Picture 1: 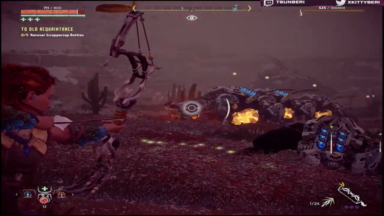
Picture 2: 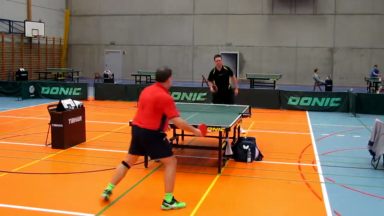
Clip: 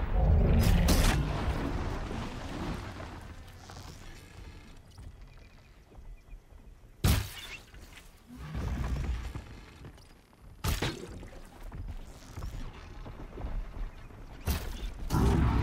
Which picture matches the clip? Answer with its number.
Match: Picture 1